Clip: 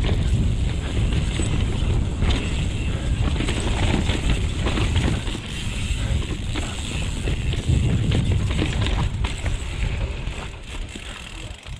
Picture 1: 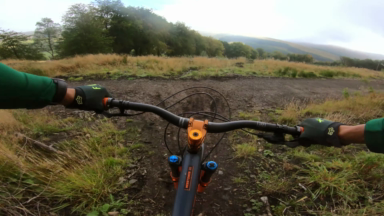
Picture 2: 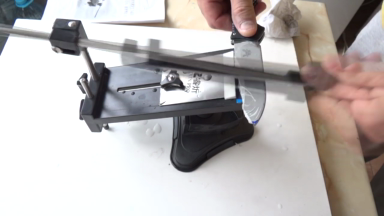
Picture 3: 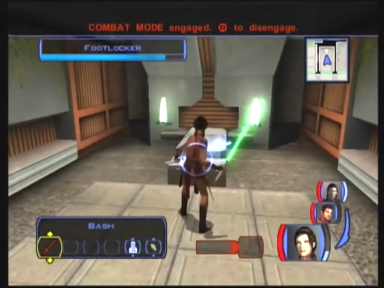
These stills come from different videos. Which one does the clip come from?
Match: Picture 1